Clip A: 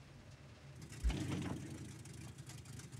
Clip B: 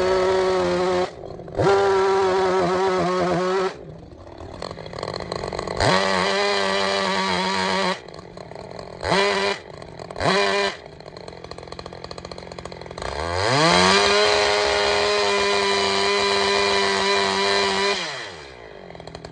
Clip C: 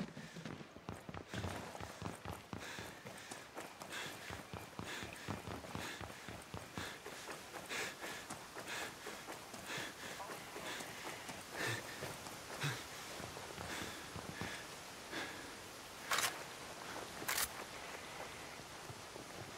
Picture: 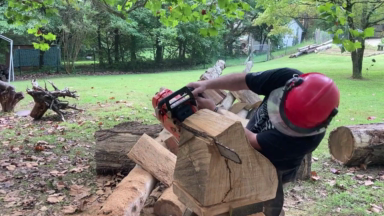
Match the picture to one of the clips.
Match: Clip B